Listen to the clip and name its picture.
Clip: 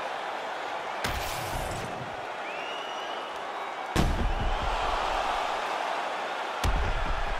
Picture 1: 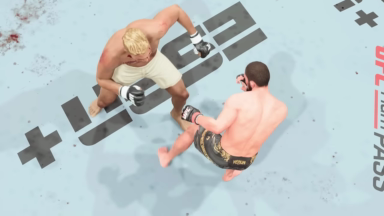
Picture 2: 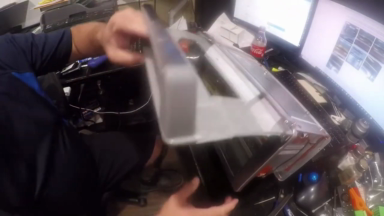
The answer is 1